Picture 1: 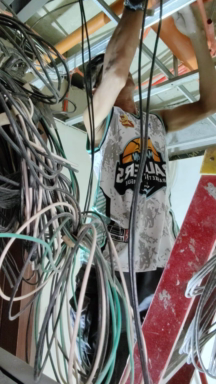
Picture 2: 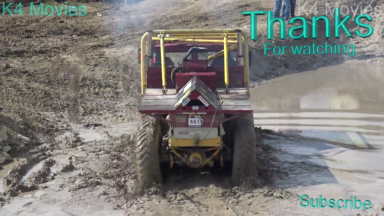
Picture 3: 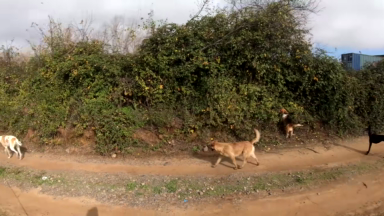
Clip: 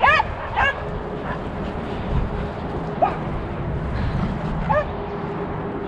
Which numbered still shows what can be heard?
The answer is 3